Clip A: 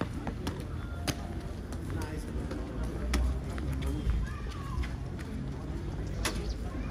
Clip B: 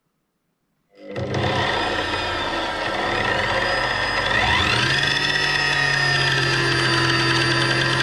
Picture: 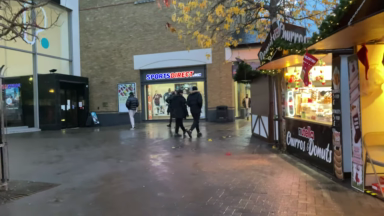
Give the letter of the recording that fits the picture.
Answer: A